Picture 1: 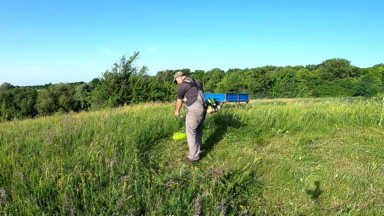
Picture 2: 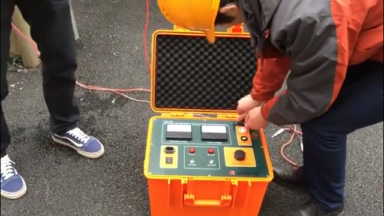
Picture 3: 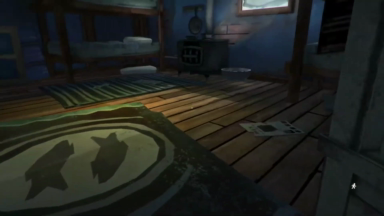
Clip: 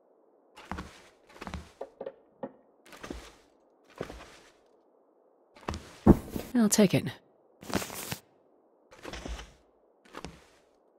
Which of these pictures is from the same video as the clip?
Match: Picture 3